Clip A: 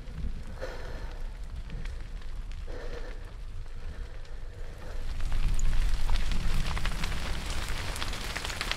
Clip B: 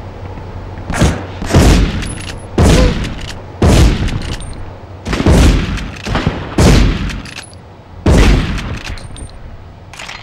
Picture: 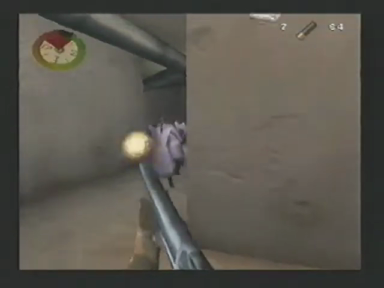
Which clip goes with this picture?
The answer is B